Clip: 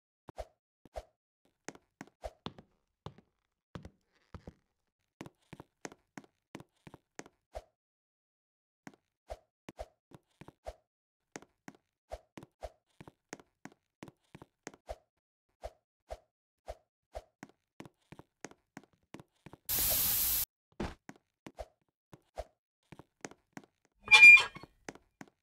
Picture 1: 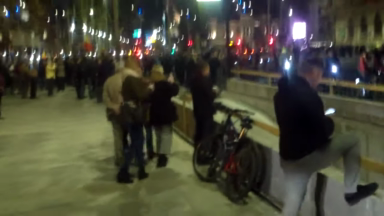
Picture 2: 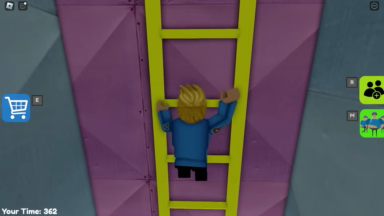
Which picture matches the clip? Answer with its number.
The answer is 2